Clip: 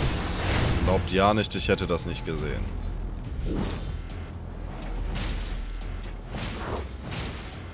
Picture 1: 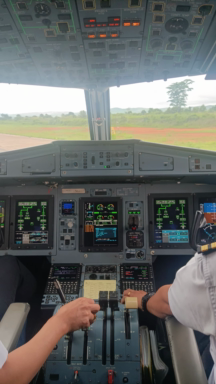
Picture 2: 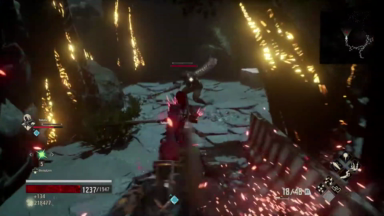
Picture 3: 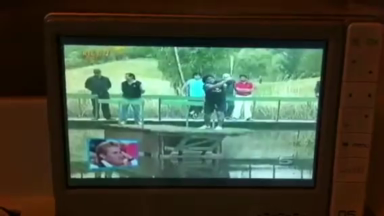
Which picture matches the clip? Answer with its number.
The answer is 2